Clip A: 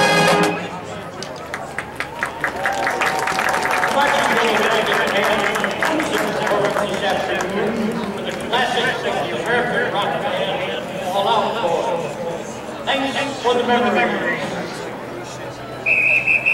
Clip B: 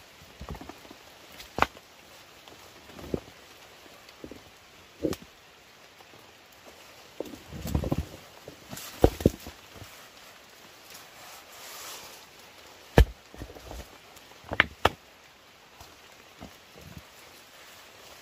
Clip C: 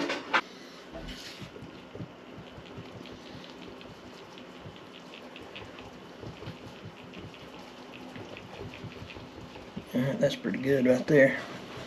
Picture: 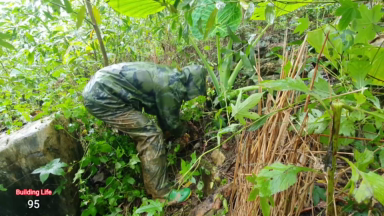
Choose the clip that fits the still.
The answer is B